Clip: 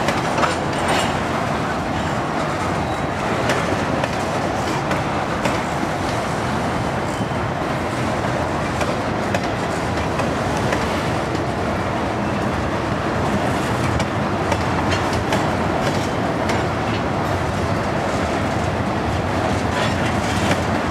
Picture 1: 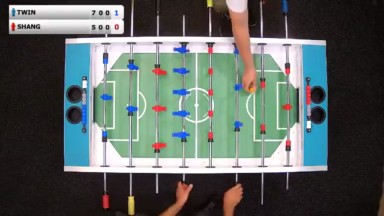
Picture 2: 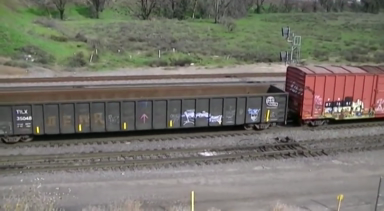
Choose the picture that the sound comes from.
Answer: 2